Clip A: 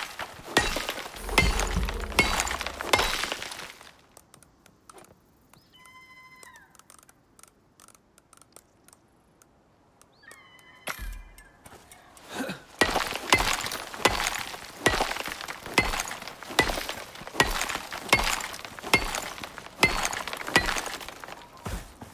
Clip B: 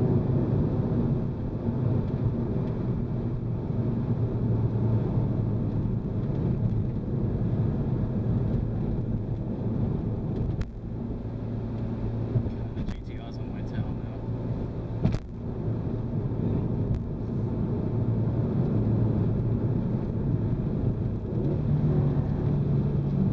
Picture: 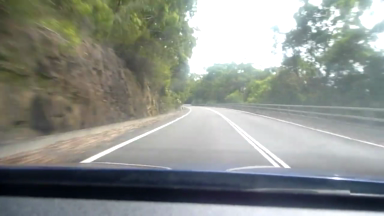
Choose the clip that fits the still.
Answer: B